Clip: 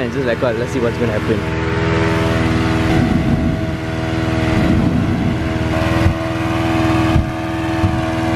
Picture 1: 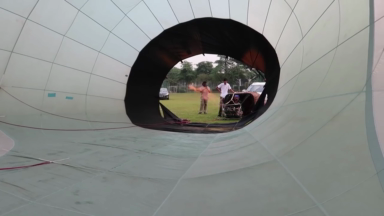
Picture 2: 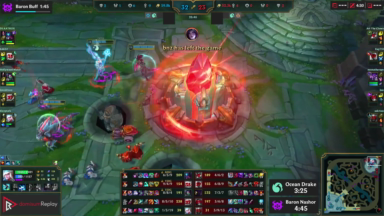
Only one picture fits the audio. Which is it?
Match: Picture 1